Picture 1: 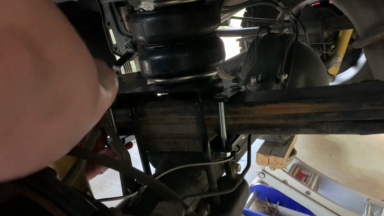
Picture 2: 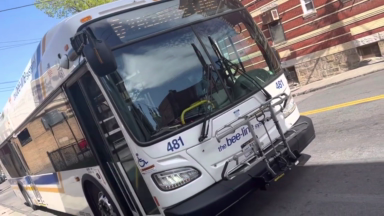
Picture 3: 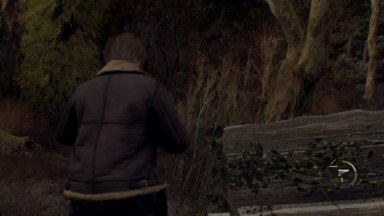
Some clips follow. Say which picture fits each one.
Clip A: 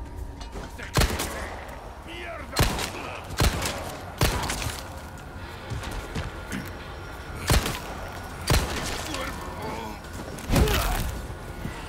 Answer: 3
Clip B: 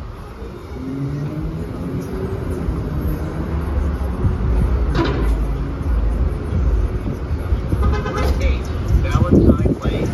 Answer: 2